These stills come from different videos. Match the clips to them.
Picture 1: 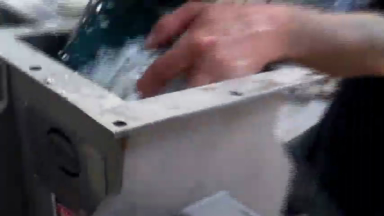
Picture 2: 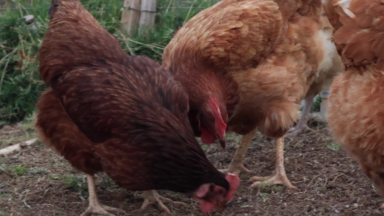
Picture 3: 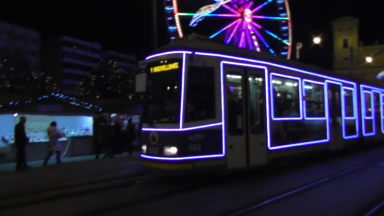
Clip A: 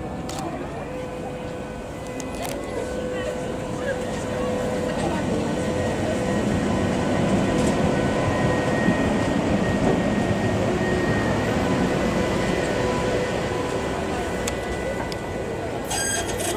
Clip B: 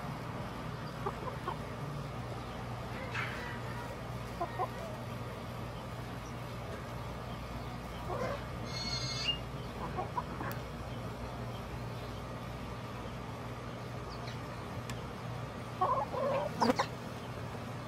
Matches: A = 3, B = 2